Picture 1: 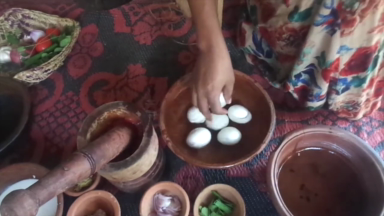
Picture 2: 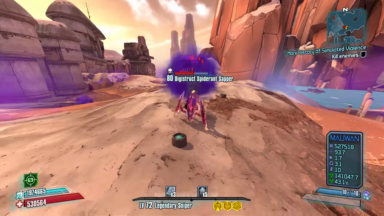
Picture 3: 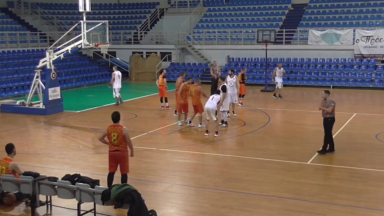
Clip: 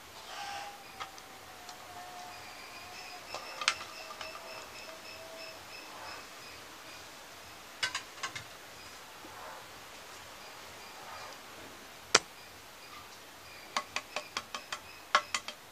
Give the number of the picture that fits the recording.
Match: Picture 1